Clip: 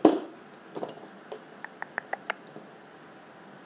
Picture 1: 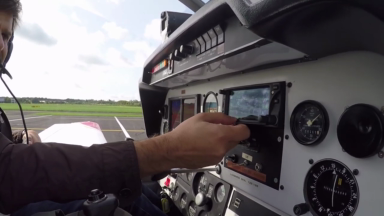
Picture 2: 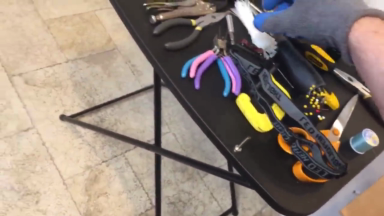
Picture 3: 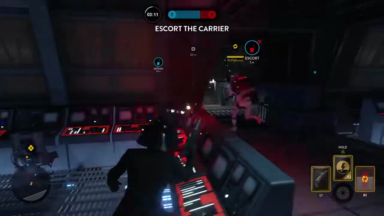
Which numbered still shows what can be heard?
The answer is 2